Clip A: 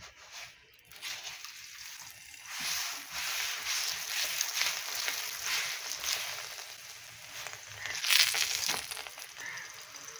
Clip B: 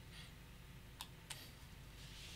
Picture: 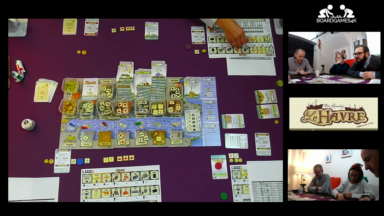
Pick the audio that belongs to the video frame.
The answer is B